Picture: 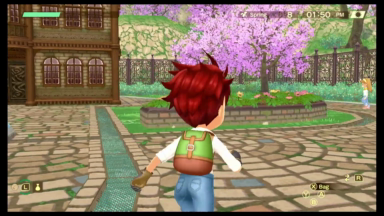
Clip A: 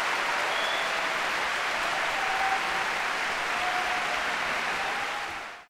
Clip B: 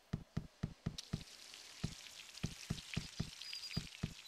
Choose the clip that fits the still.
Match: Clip B